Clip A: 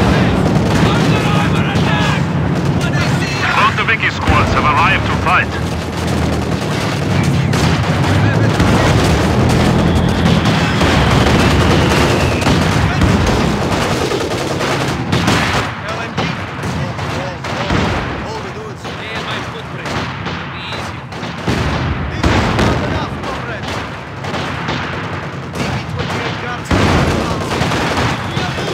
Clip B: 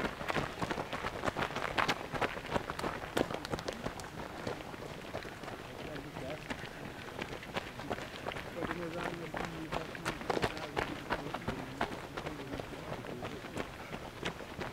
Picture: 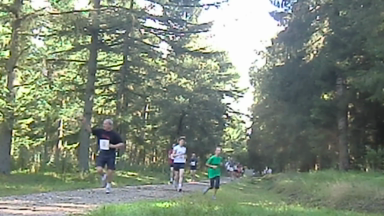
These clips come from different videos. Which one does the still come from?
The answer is B